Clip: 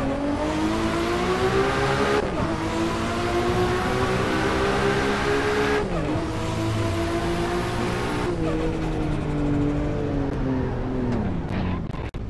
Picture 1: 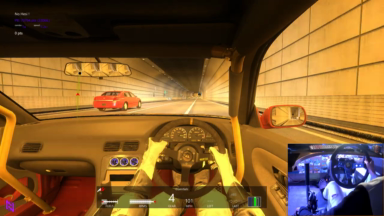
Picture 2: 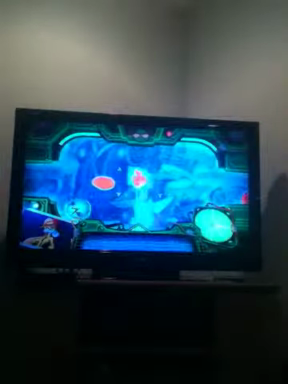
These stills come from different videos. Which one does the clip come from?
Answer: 1